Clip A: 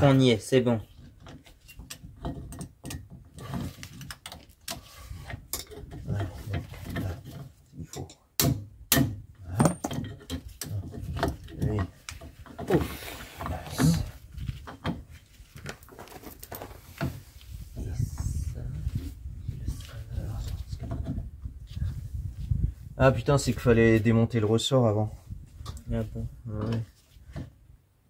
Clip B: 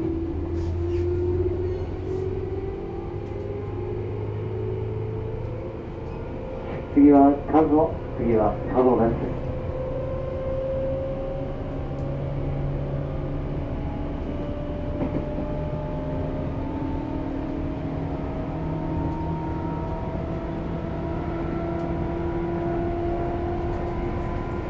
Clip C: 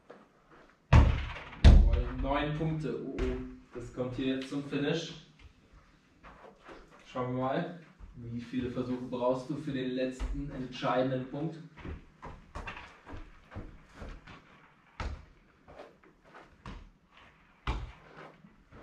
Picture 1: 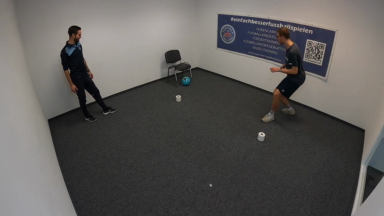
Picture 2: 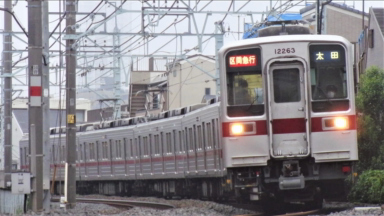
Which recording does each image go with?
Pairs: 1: C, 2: B